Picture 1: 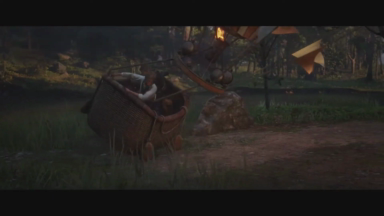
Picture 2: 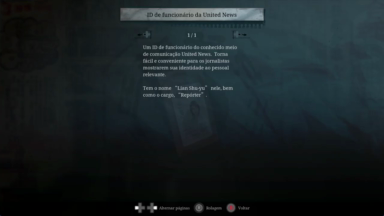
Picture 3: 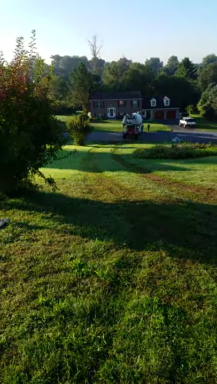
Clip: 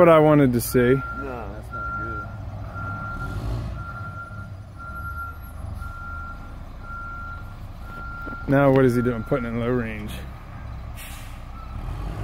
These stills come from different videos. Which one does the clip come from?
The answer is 3